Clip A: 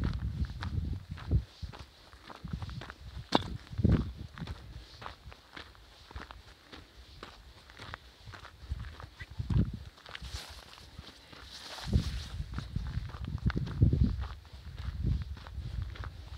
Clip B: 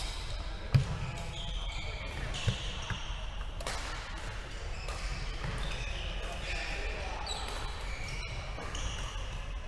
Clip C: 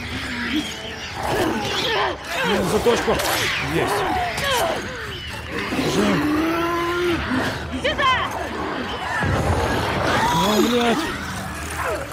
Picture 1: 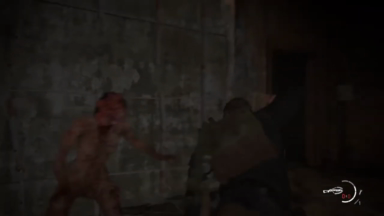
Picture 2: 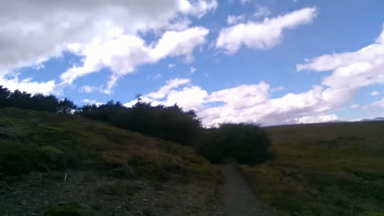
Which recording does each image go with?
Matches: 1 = C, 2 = A